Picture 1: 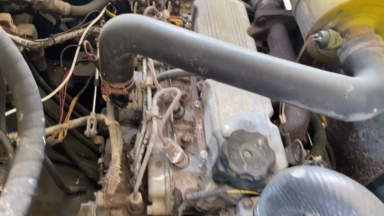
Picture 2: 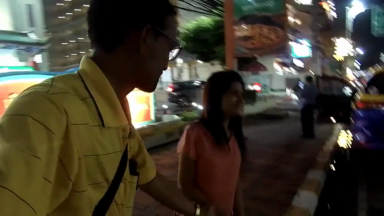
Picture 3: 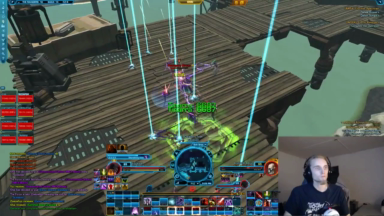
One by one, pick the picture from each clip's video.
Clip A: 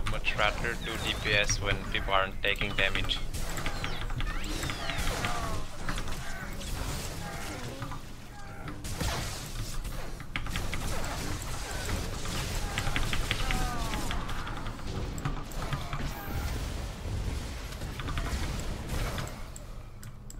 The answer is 3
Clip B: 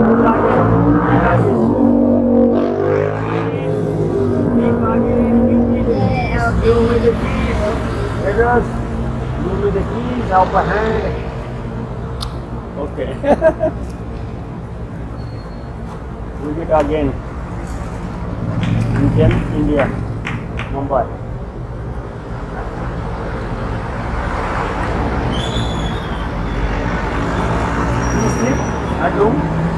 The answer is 2